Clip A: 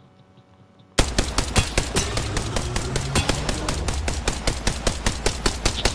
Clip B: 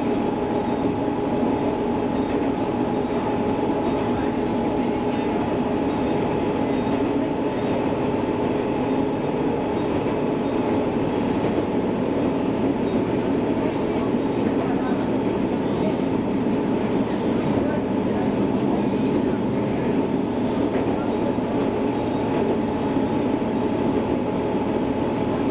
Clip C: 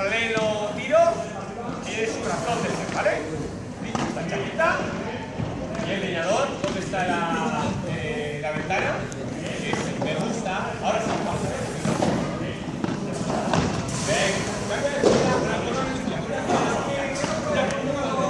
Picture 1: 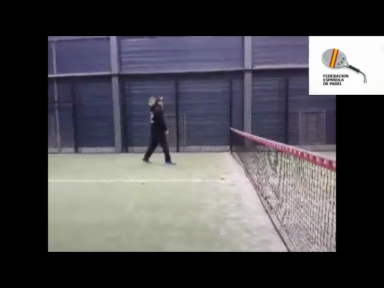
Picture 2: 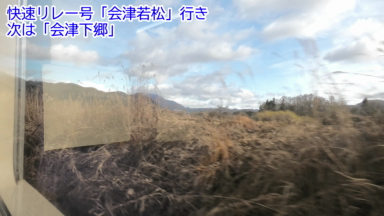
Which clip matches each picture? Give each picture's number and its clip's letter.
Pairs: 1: C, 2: B